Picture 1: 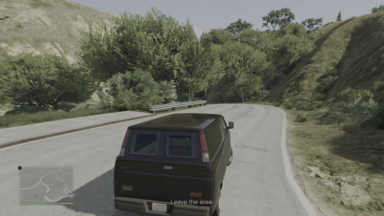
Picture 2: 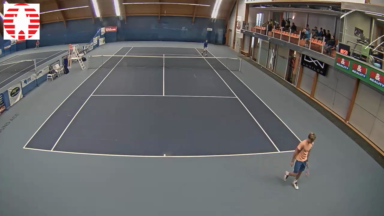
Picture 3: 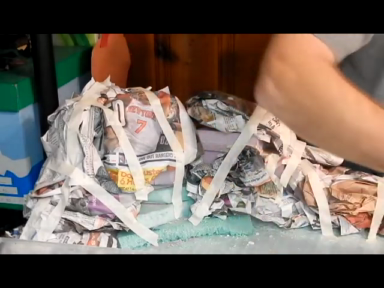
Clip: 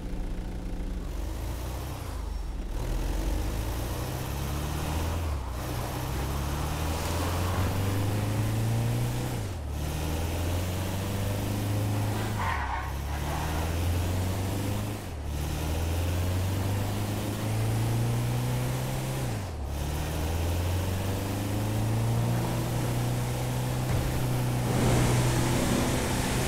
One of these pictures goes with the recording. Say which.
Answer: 1